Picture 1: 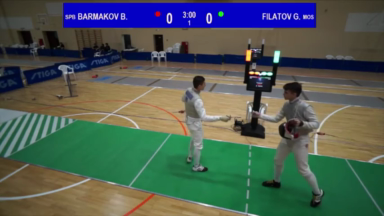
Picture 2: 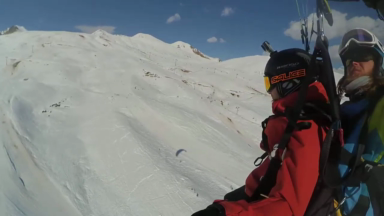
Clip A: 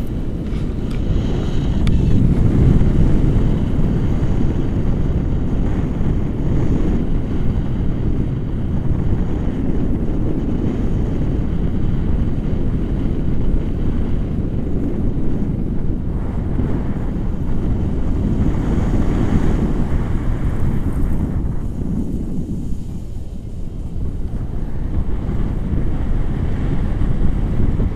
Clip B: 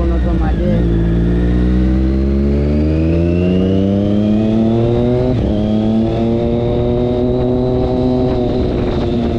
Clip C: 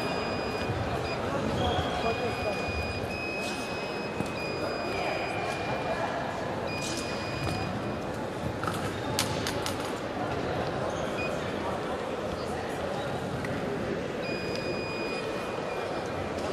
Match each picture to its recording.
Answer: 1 C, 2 A